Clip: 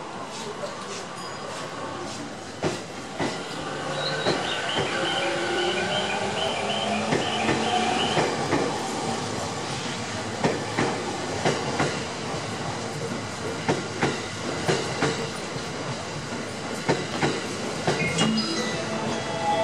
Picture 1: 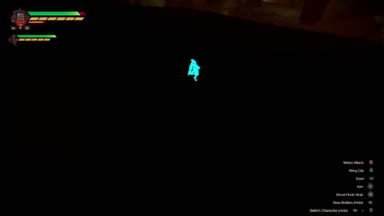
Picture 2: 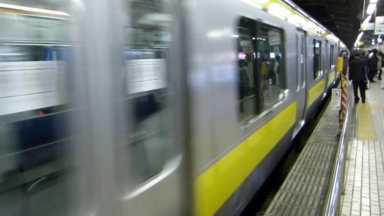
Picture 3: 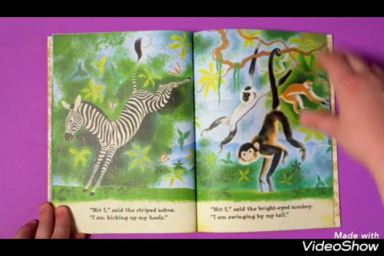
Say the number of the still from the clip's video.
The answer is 2